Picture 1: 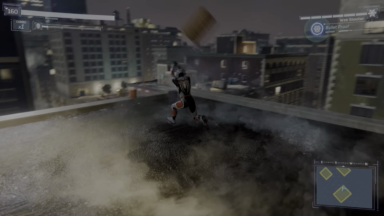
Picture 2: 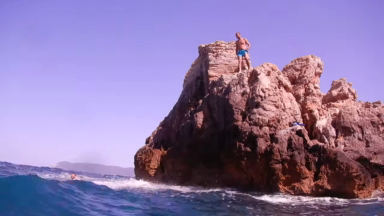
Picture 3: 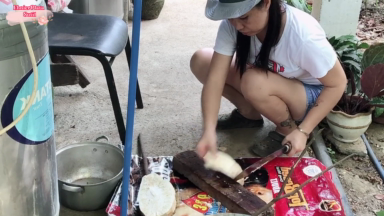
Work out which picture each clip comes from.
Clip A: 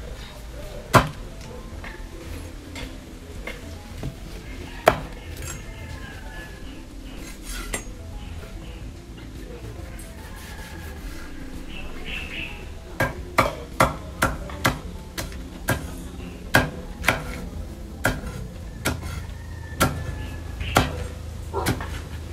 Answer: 3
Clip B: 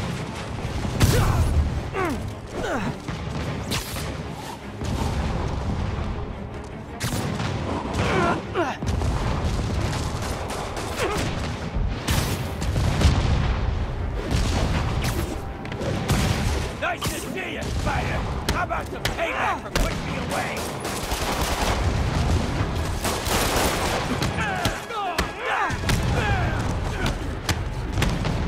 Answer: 1